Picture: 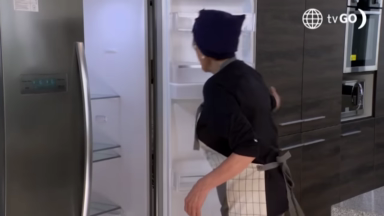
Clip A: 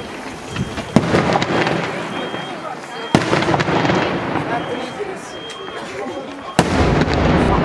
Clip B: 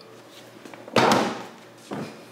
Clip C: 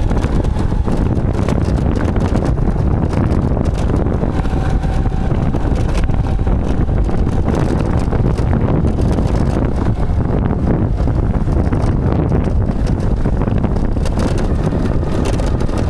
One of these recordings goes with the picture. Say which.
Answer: B